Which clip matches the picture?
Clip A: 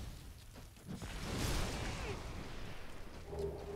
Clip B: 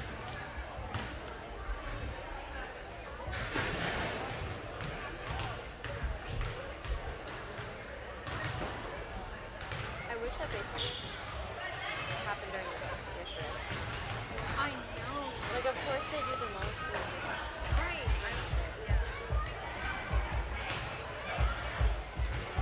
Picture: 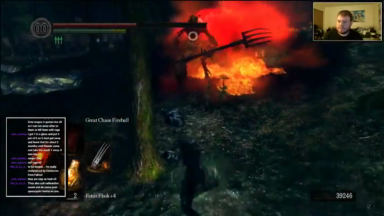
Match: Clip A